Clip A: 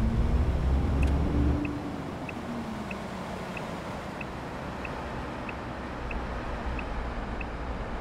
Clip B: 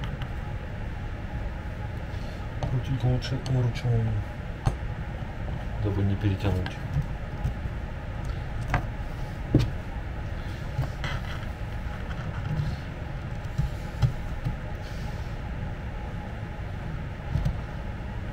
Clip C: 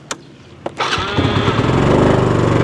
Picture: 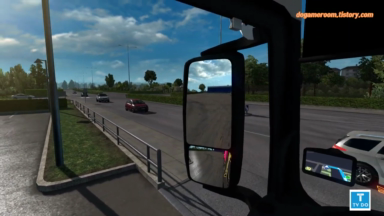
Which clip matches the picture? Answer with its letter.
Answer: A